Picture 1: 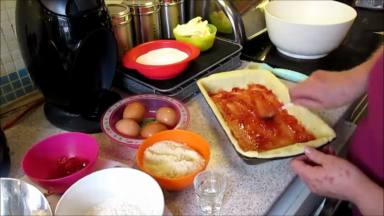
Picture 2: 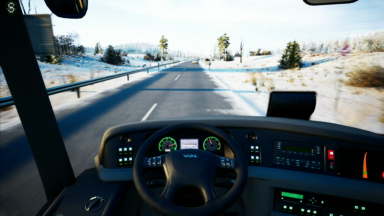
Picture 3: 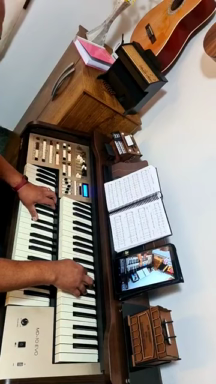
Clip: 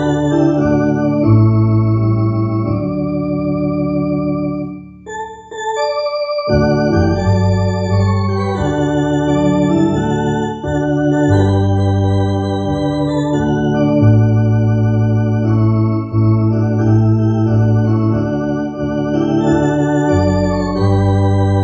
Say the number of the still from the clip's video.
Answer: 3